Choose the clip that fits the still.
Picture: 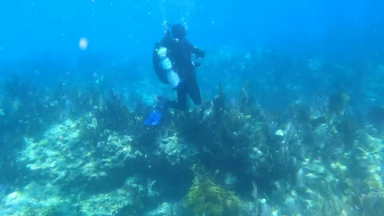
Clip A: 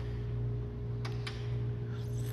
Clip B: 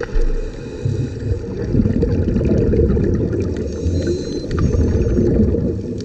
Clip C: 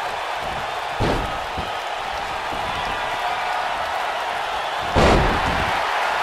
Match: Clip B